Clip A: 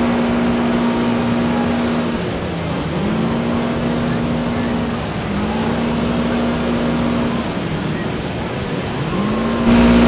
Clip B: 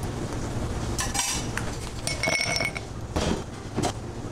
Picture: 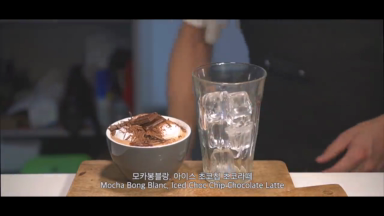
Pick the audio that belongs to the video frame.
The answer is B